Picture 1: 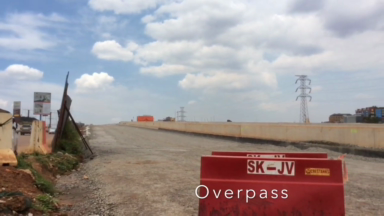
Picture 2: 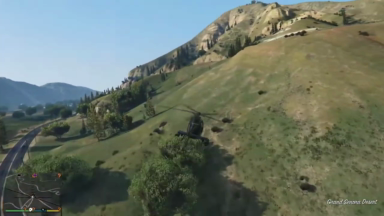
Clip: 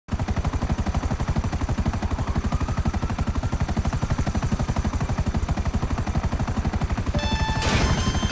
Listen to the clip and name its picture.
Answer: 2